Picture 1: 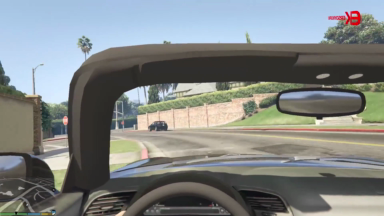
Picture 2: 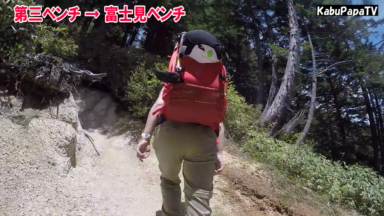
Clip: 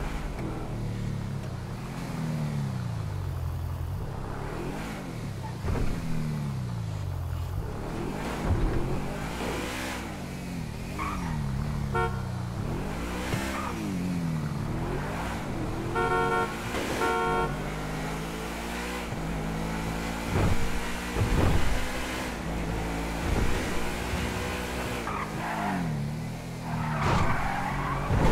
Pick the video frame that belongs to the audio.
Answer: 1